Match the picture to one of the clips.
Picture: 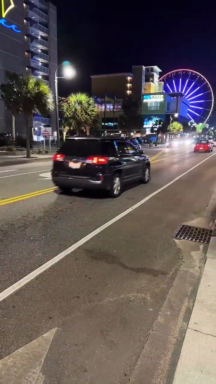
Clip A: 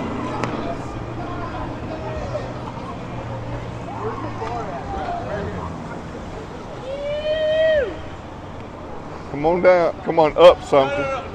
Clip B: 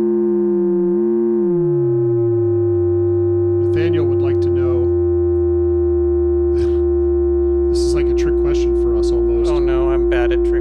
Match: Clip A